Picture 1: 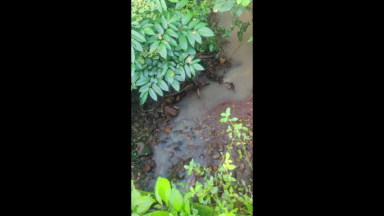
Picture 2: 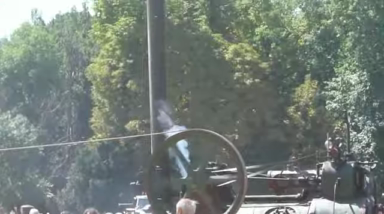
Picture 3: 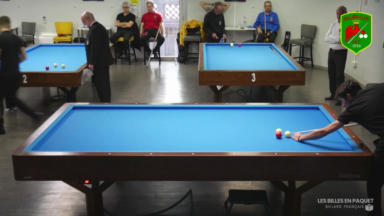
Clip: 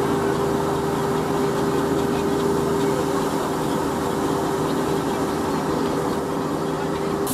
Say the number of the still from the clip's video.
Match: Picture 2